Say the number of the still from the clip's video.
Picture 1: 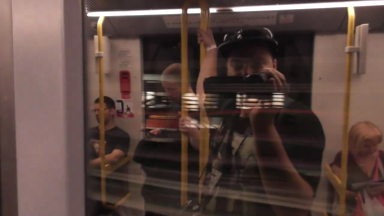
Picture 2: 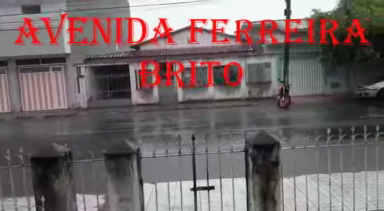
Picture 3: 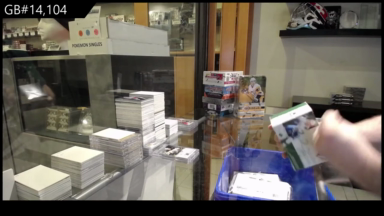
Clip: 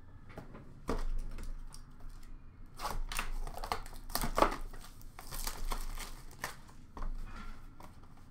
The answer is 3